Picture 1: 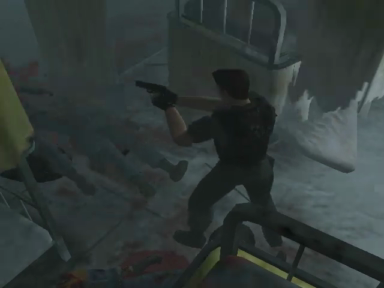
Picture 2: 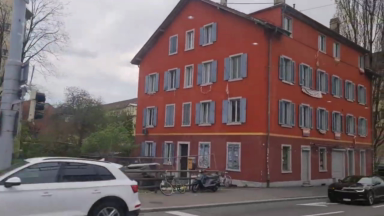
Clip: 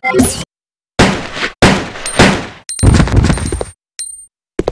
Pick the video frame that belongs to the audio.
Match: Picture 1